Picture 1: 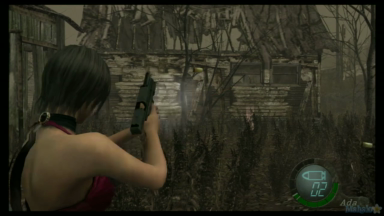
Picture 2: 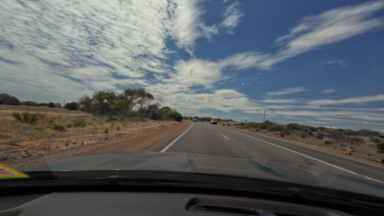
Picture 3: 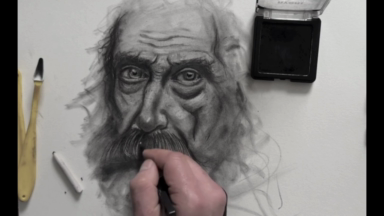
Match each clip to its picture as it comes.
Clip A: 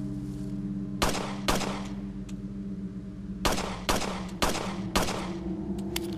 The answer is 1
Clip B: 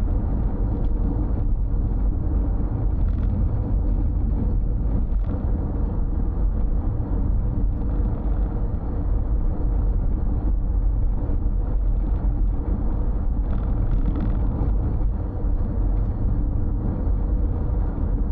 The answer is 2